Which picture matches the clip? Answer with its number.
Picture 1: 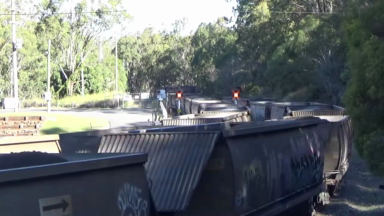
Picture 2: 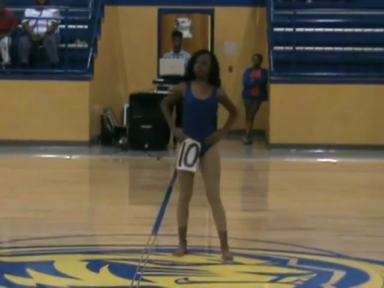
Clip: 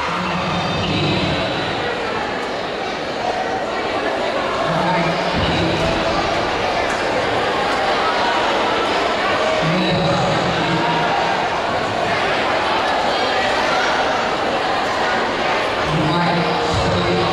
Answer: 2